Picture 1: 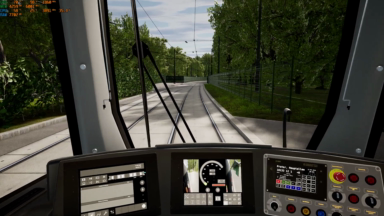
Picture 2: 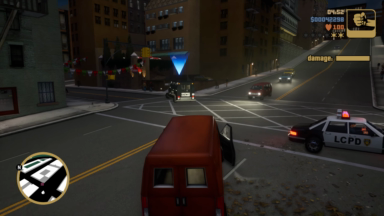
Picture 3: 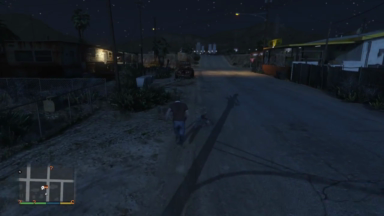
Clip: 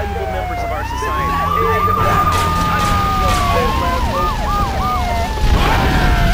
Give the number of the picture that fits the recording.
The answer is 2